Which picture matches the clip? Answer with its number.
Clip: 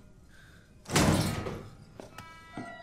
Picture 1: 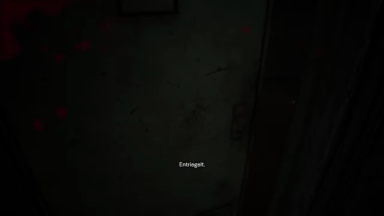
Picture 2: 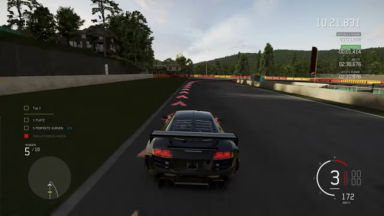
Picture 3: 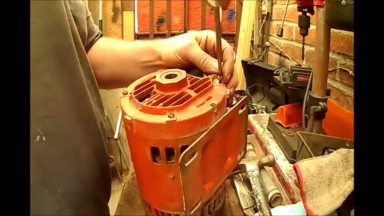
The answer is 1